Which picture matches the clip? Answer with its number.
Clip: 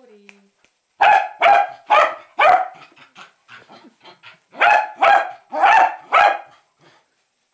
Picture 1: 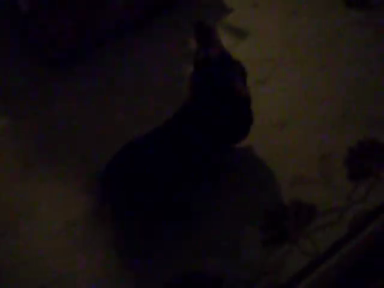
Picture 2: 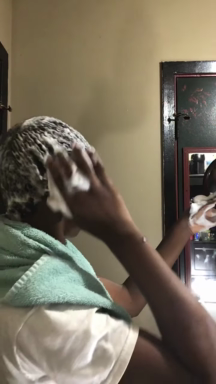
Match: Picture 1